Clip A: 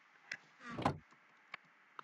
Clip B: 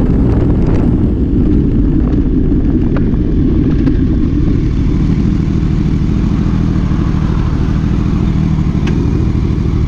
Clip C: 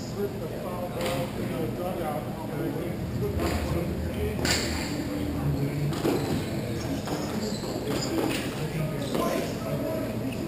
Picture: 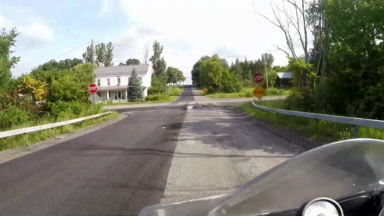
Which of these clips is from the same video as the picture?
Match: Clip B